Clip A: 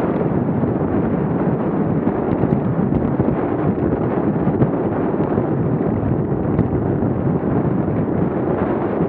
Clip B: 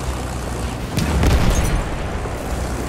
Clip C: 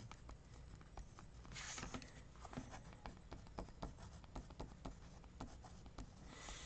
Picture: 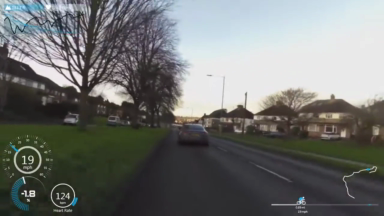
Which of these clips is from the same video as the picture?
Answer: A